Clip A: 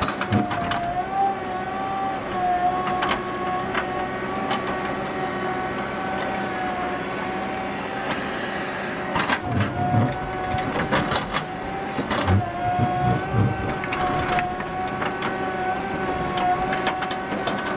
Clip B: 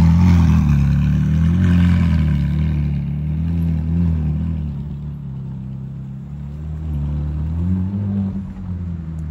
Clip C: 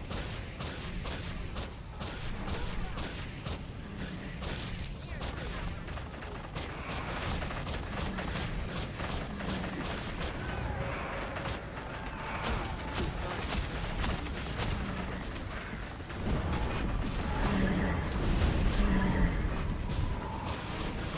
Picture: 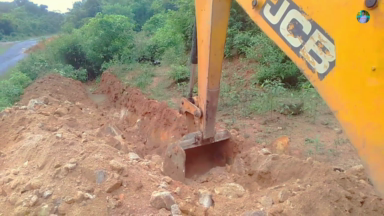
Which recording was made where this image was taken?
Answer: A